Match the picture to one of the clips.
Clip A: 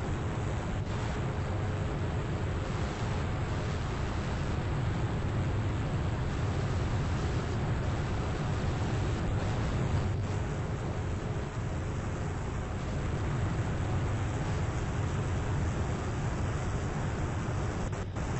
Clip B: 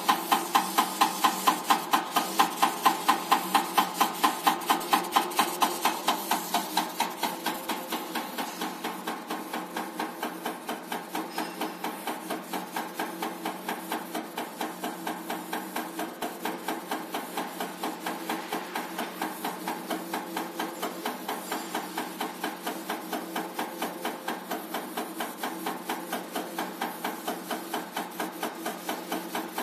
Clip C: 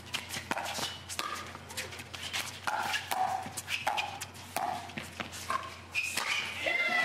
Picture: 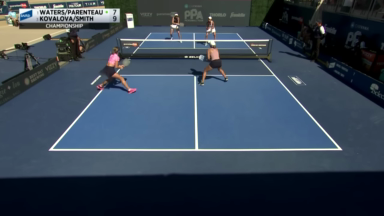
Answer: C